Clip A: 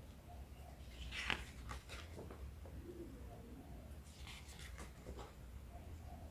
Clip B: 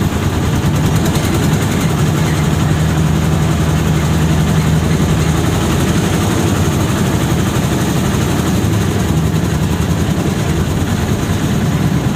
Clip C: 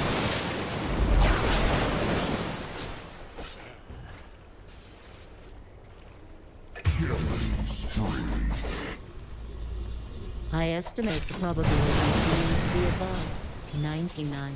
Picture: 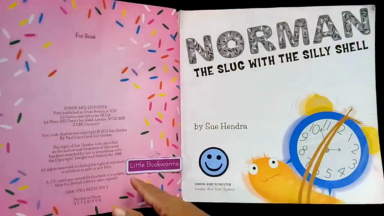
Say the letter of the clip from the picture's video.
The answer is A